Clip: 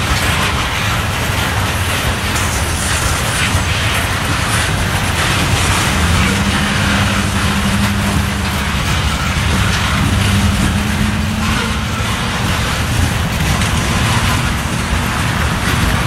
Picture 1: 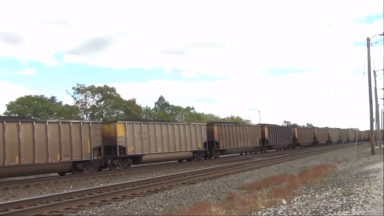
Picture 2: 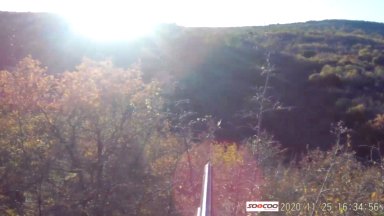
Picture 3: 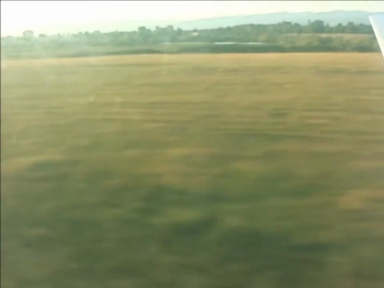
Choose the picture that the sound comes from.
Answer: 1